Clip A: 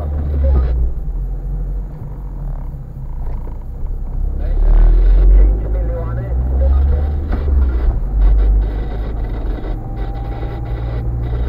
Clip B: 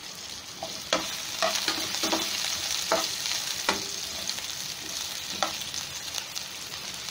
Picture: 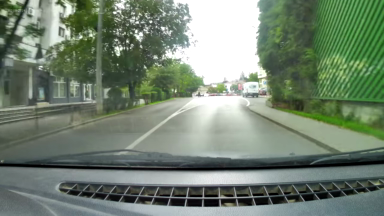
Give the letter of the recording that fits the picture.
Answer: A